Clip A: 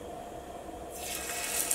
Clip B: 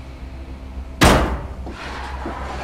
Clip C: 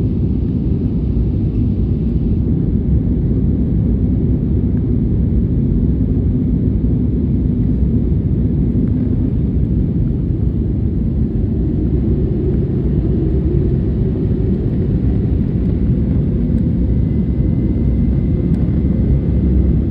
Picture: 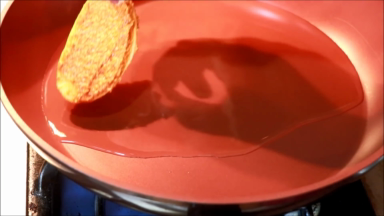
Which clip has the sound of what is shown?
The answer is A